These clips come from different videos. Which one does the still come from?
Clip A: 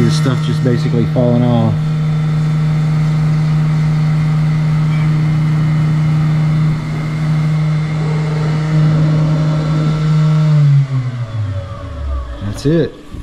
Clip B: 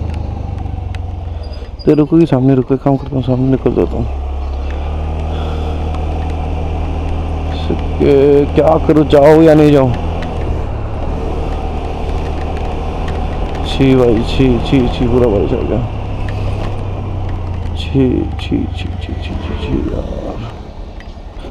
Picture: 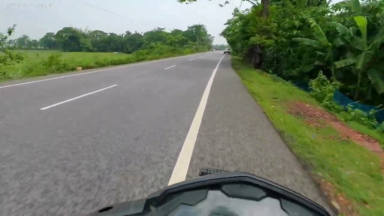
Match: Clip B